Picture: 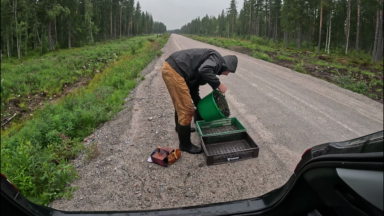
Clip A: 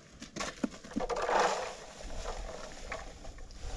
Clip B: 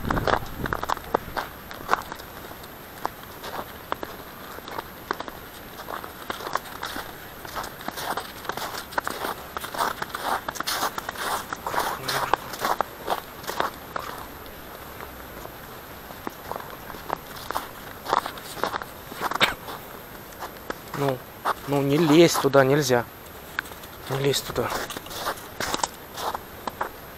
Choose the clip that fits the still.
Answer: A